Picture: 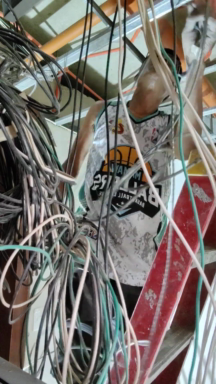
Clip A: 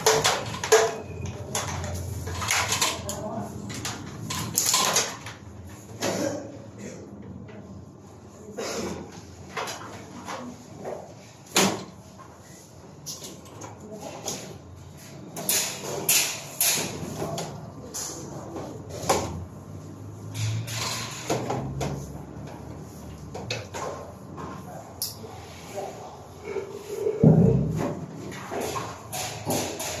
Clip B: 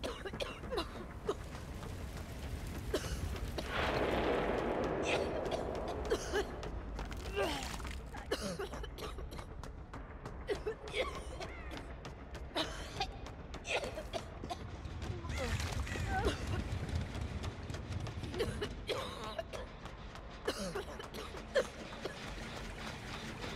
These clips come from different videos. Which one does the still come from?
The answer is A